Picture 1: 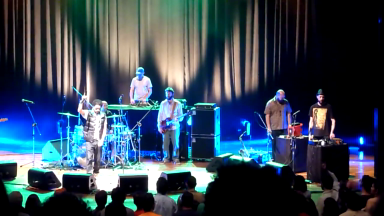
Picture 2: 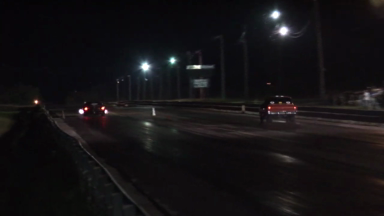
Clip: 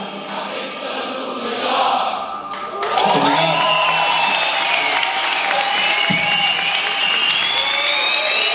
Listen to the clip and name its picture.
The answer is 1